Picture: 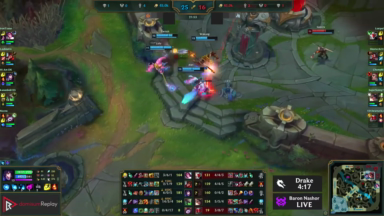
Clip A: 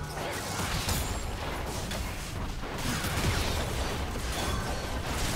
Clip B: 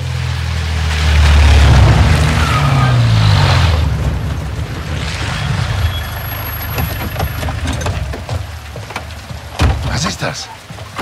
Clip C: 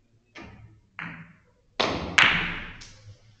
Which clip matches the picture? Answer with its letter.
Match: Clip A